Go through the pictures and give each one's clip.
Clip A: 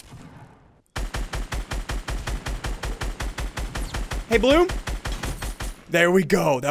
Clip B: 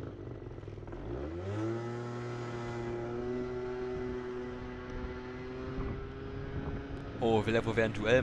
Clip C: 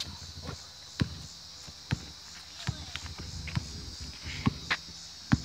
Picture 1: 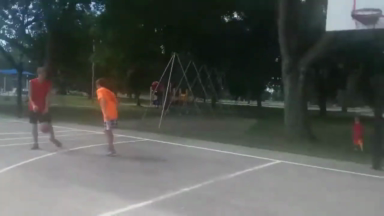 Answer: C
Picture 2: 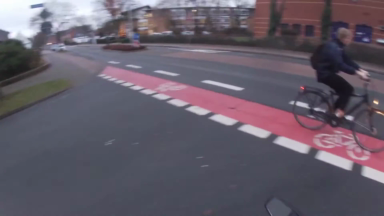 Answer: B